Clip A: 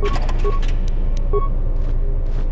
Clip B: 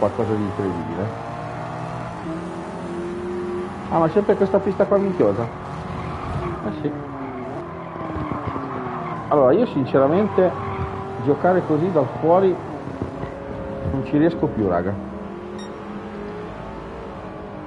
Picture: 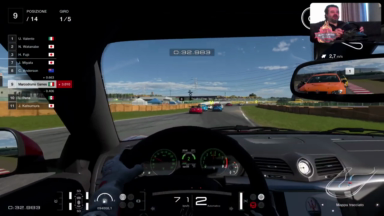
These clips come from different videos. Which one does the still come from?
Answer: B